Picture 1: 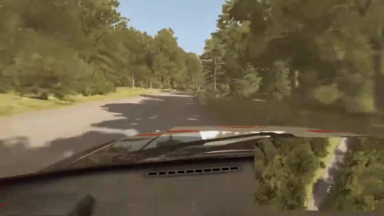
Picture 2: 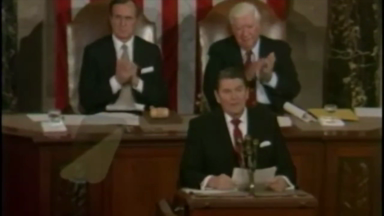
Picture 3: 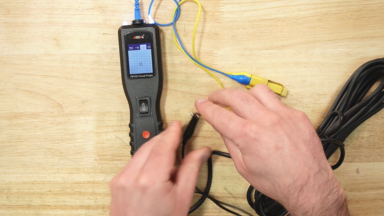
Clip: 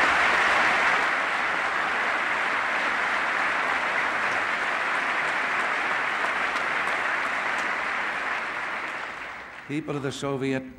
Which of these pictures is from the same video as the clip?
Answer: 2